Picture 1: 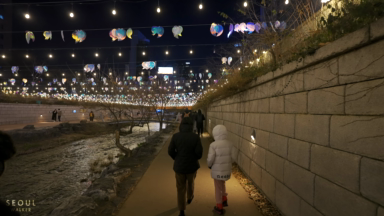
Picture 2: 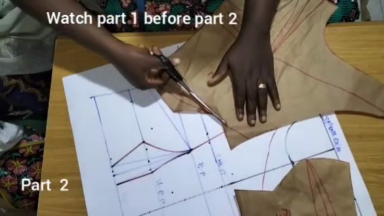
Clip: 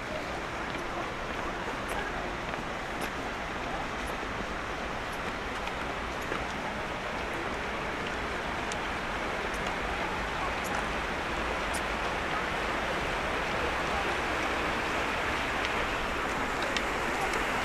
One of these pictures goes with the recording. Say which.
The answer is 1